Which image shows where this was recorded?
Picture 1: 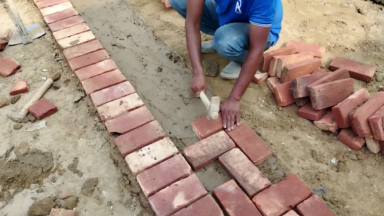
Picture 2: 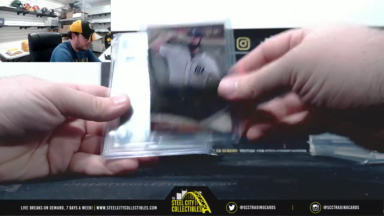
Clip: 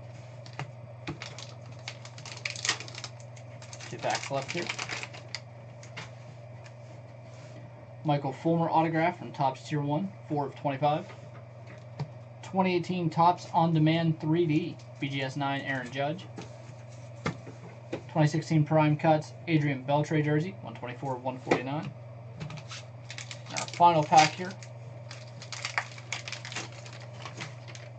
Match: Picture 2